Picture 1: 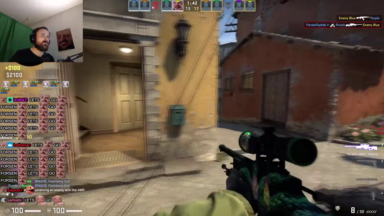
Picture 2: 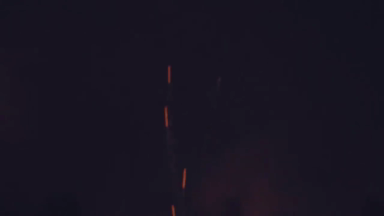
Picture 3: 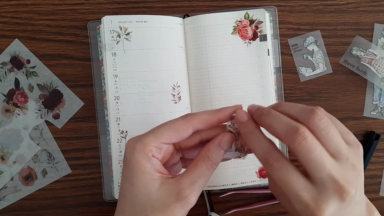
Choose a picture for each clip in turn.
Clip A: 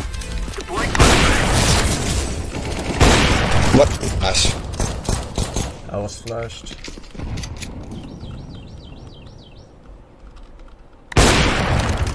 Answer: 1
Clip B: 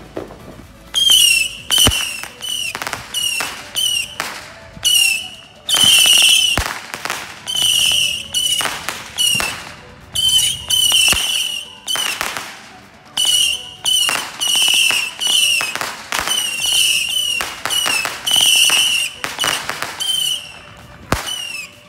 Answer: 2